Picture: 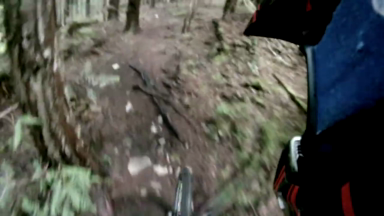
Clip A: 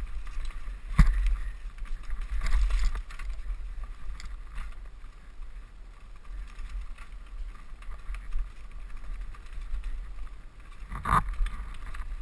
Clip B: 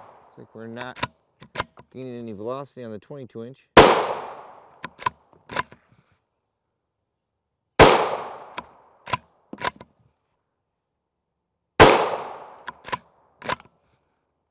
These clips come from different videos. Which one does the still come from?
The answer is A